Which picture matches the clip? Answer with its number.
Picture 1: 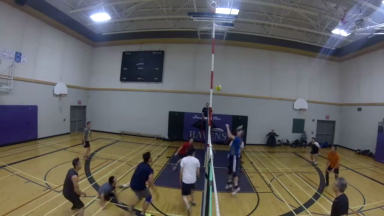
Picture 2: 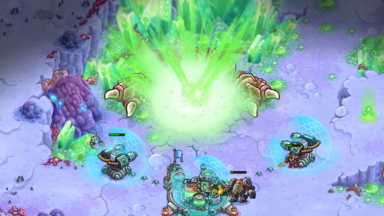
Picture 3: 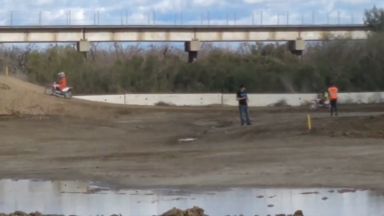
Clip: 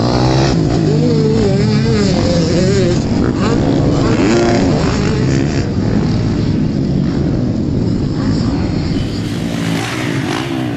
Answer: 3